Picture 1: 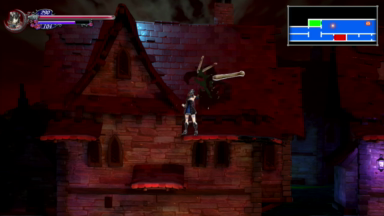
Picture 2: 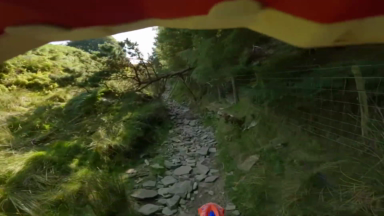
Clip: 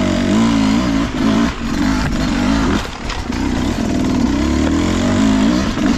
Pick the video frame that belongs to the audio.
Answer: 2